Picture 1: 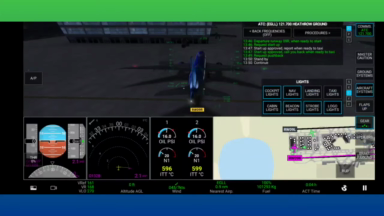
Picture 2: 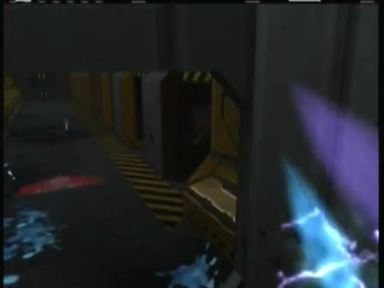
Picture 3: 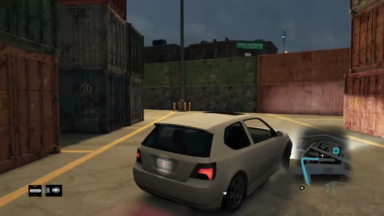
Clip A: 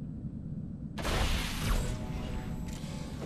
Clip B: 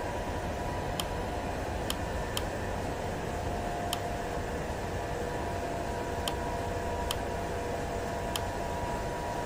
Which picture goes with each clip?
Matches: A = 2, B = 1